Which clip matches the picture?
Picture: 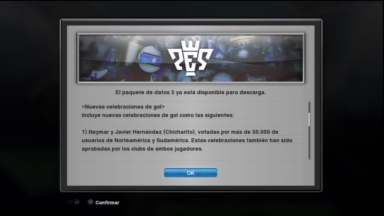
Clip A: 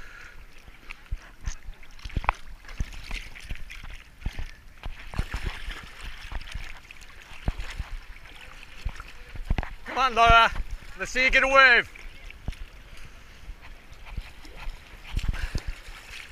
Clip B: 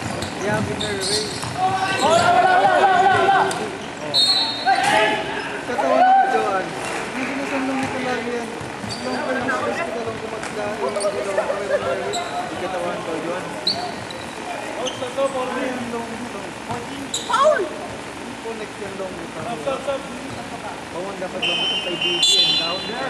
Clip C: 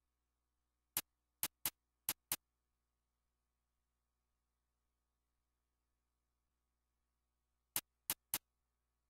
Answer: C